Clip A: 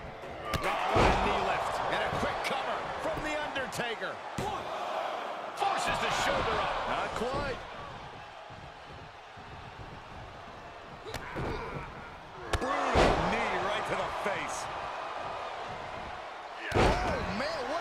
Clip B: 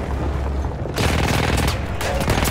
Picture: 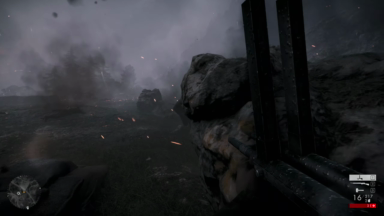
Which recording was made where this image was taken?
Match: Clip B